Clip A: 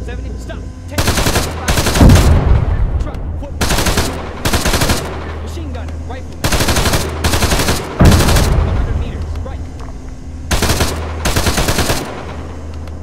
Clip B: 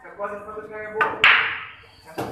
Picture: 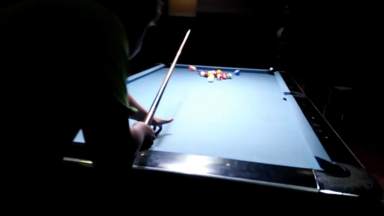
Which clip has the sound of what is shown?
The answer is B